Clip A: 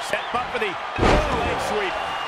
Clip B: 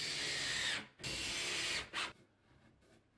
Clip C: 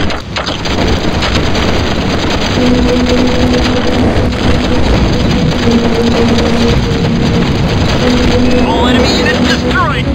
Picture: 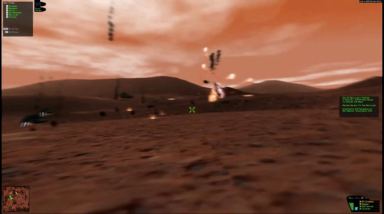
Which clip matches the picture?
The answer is C